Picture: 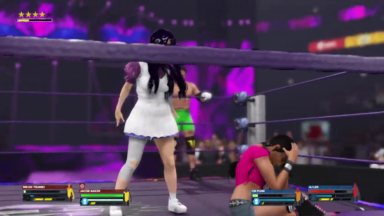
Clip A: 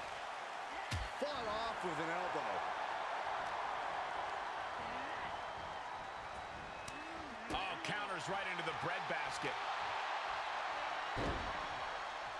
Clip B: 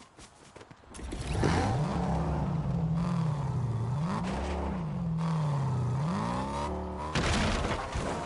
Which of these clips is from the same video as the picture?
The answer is A